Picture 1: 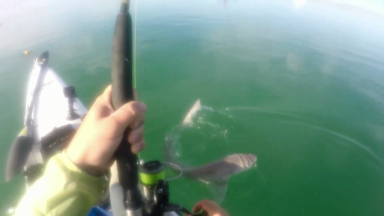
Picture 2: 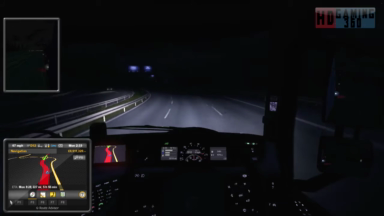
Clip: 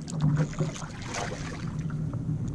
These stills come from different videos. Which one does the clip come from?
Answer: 1